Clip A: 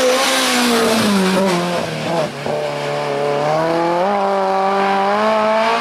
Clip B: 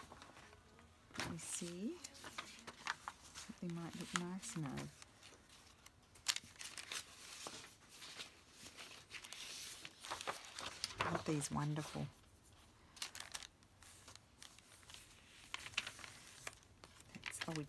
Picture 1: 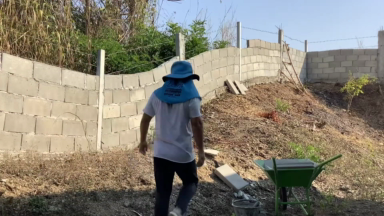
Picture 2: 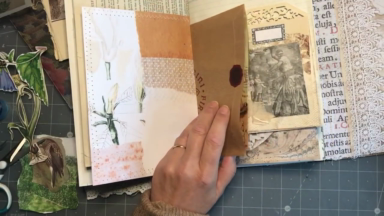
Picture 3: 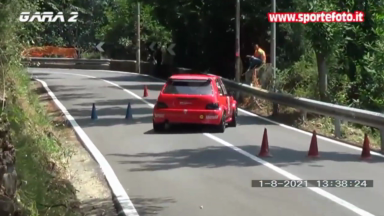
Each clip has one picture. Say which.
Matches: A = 3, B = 2